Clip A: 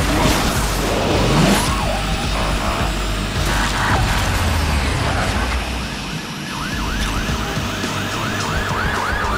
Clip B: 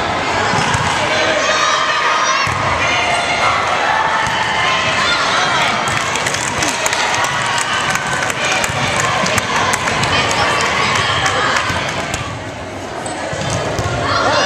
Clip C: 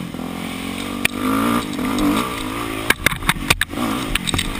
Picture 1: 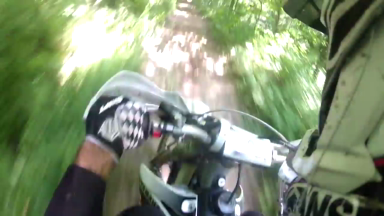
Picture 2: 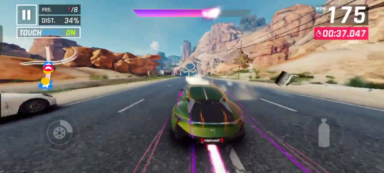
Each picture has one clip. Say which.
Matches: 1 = C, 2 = A